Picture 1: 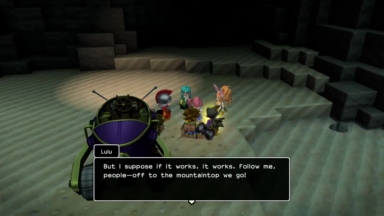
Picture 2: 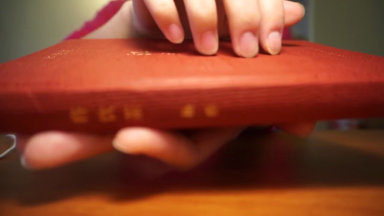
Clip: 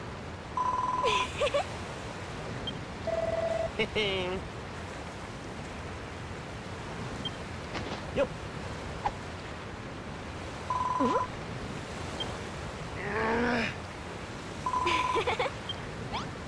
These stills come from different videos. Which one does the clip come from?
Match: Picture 1